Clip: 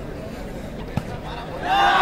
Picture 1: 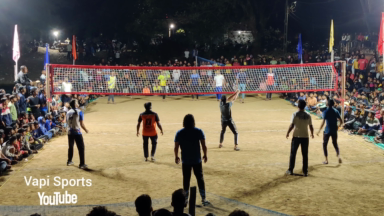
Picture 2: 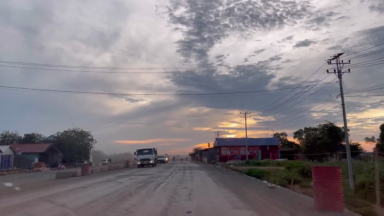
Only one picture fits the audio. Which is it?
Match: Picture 1